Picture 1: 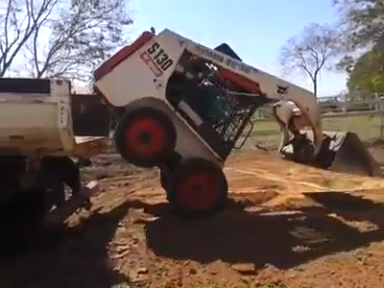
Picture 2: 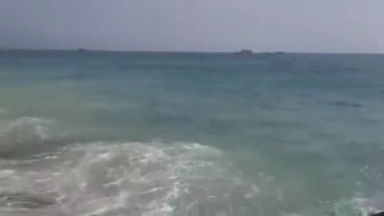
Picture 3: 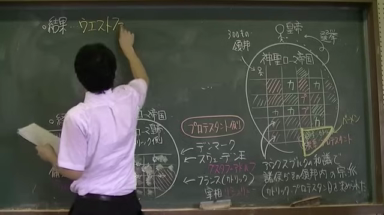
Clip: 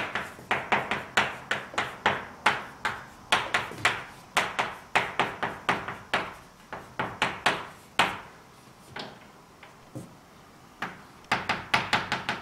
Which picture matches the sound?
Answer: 3